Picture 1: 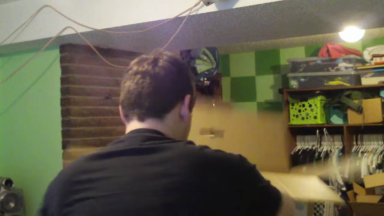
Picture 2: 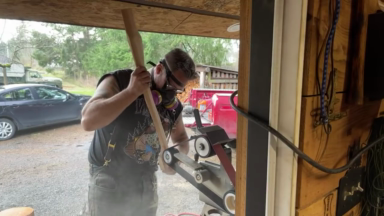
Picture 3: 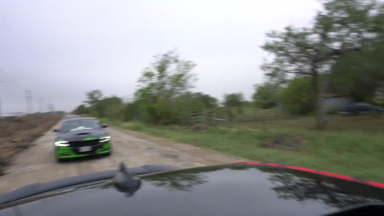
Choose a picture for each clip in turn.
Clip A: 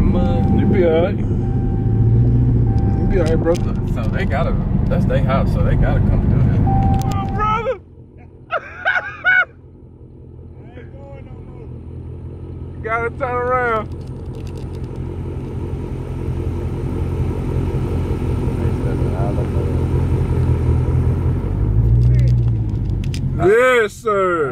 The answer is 3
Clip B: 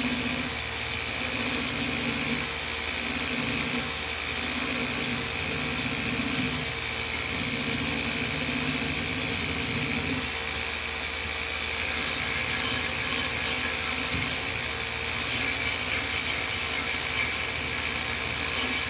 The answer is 2